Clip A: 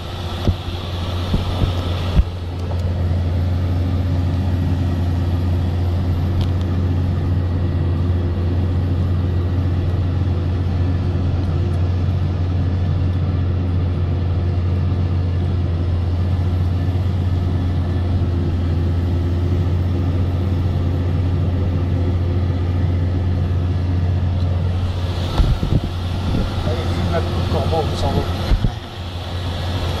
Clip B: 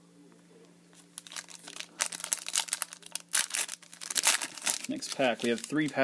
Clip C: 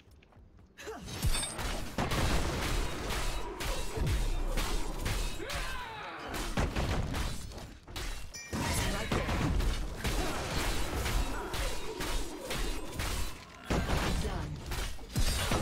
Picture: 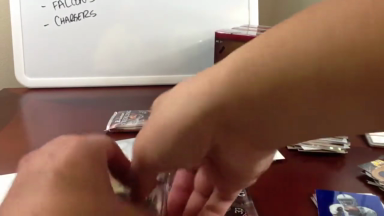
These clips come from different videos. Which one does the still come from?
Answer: B